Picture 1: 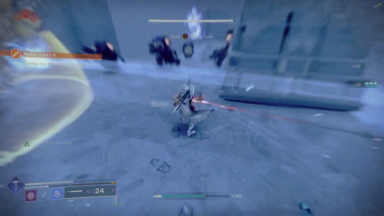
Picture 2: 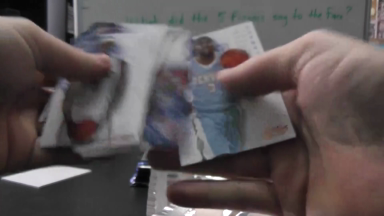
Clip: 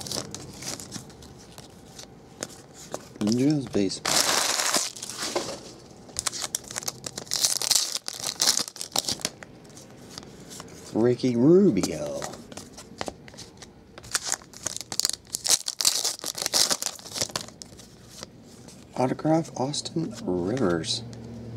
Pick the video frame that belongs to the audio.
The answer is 2